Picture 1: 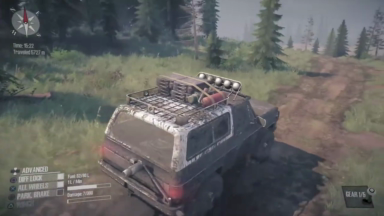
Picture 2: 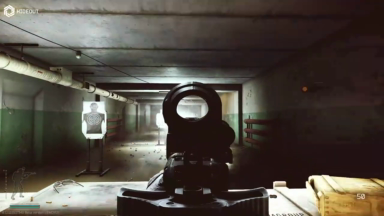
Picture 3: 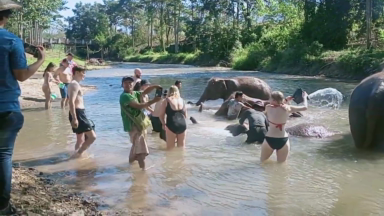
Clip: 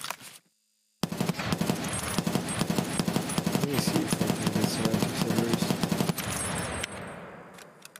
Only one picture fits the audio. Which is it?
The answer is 2